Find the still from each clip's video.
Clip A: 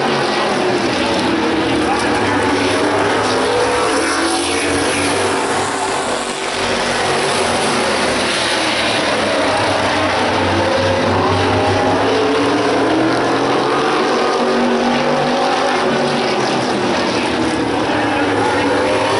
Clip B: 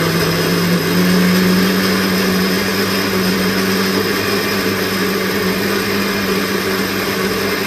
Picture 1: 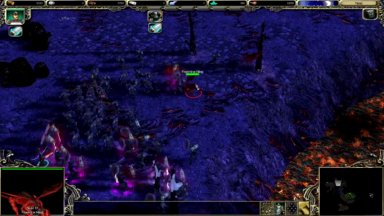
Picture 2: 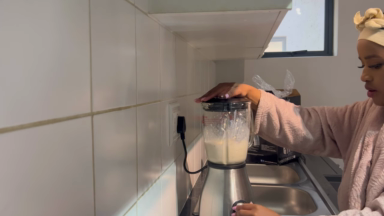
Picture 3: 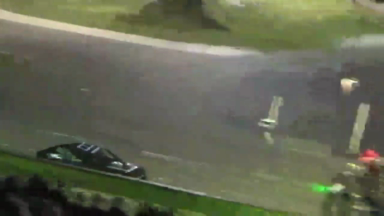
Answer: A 3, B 2